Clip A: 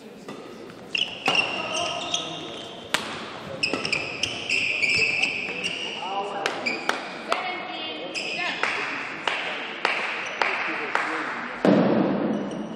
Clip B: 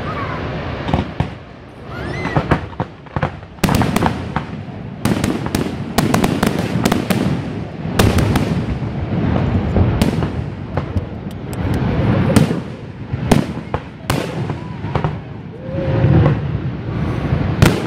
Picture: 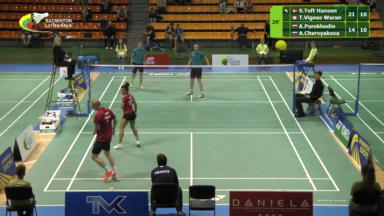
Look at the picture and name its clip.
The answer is A